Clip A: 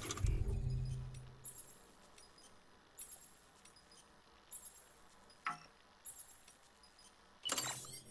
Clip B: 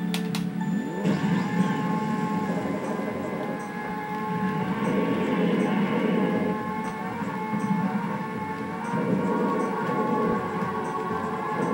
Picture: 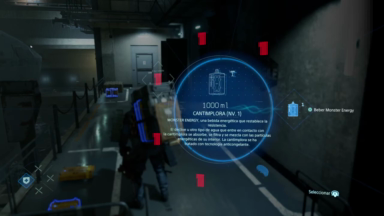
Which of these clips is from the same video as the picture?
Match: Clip A